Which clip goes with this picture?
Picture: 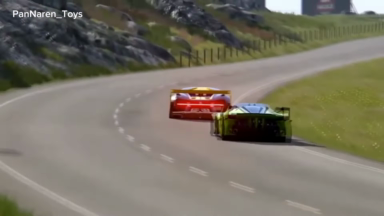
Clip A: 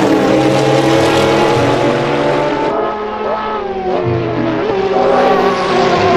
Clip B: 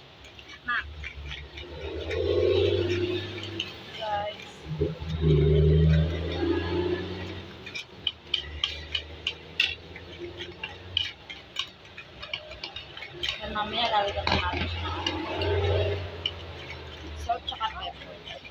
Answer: A